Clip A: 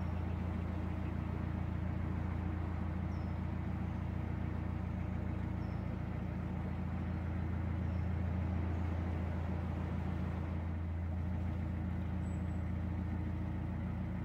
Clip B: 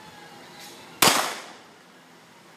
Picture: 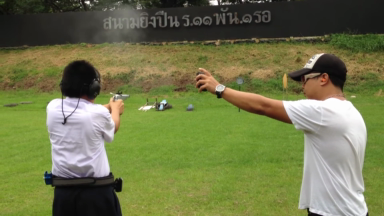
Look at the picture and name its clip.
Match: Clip B